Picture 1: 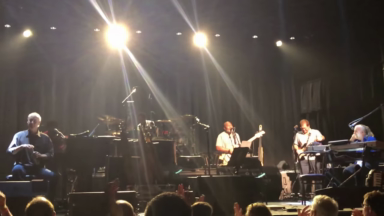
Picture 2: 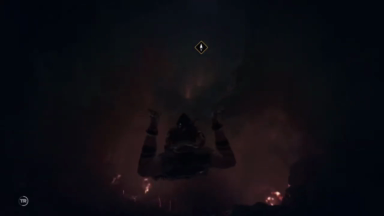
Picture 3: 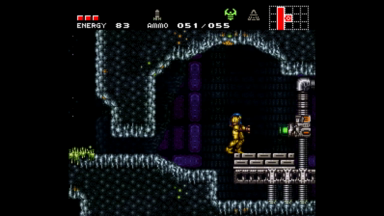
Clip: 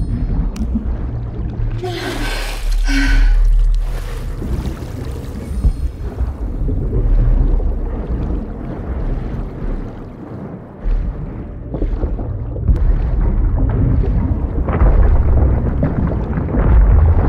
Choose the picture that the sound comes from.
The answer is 2